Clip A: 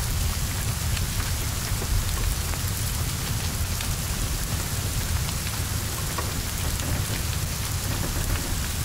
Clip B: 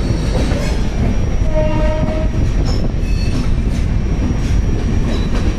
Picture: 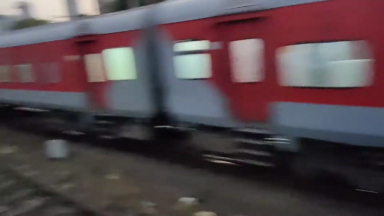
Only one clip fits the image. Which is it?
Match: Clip B